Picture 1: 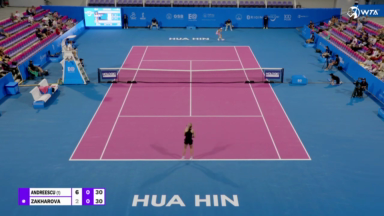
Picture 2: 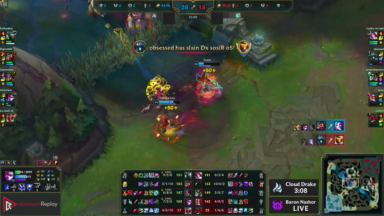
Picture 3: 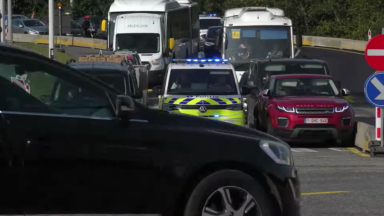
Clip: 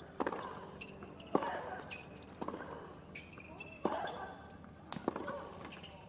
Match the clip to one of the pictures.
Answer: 1